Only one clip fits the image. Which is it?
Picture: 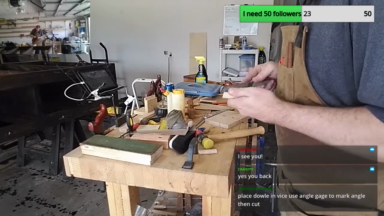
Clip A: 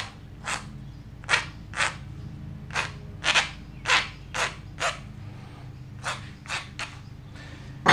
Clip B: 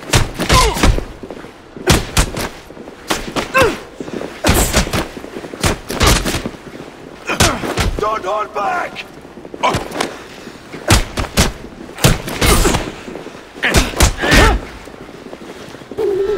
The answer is A